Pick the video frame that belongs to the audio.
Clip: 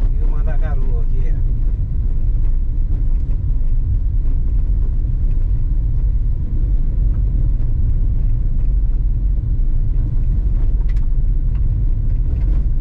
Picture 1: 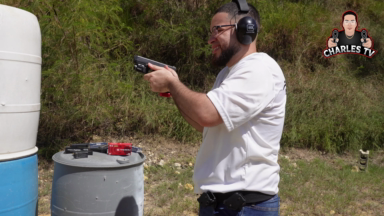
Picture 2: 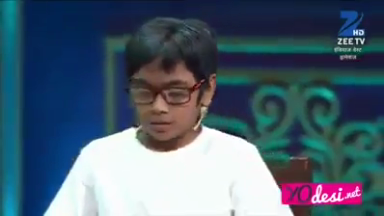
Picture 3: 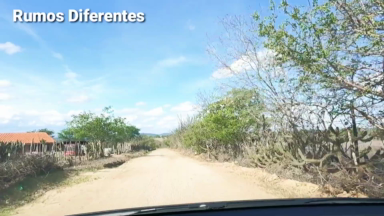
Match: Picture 3